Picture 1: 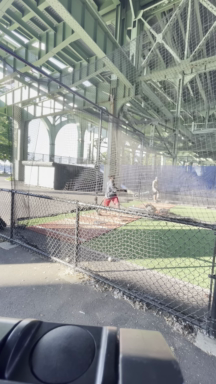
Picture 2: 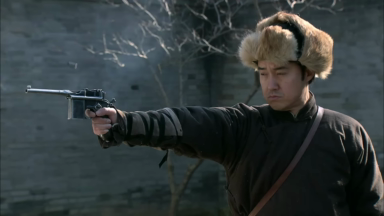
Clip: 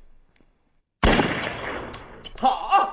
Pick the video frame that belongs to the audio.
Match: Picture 2